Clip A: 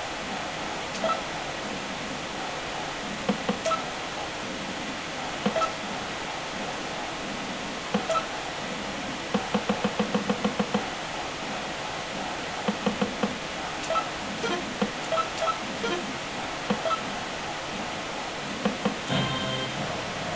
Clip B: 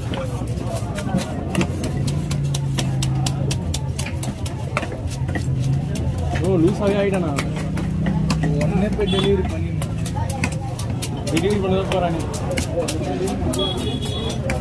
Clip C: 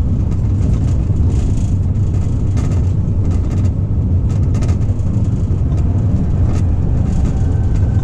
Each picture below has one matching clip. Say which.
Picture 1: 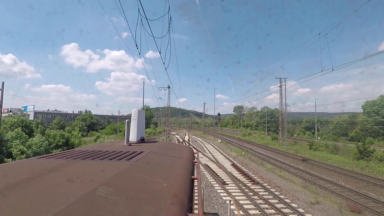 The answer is C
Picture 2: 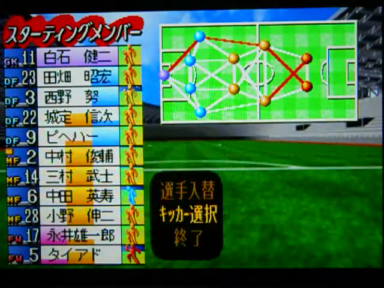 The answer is A